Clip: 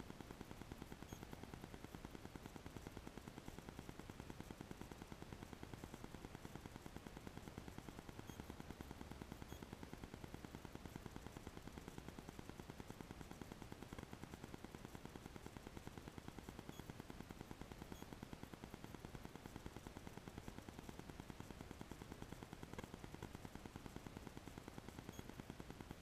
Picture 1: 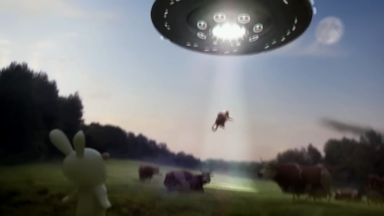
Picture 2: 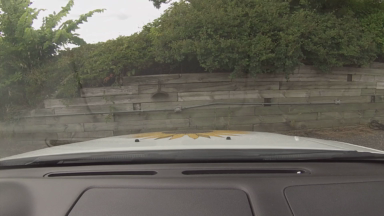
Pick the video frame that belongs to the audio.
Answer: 2